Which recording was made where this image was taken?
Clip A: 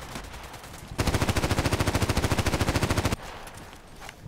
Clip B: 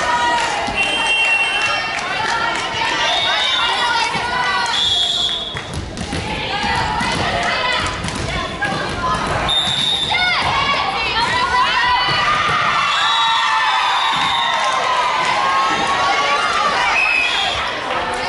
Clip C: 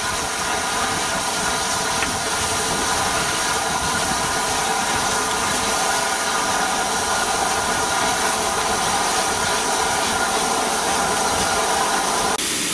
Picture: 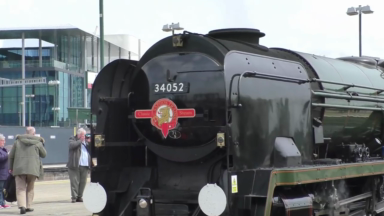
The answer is C